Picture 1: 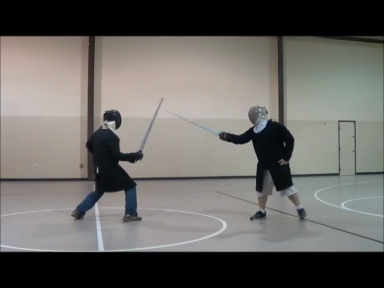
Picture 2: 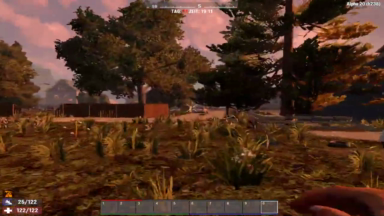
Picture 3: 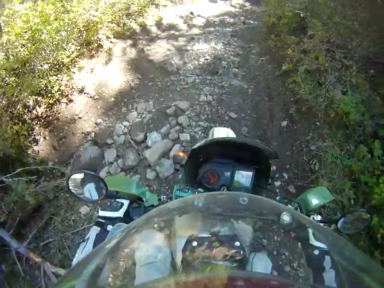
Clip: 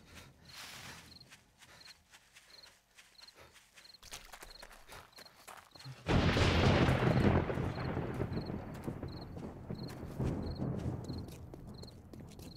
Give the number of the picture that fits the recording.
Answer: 2